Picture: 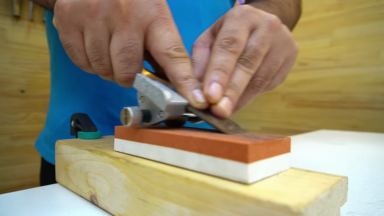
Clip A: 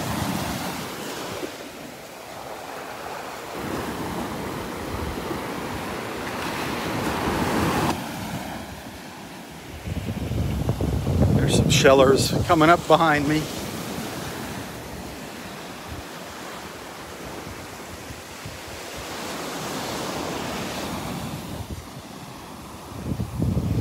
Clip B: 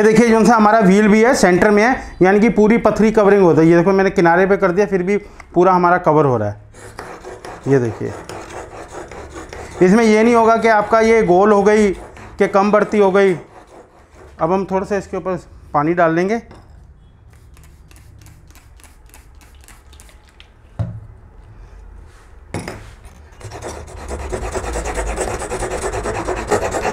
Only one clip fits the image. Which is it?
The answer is B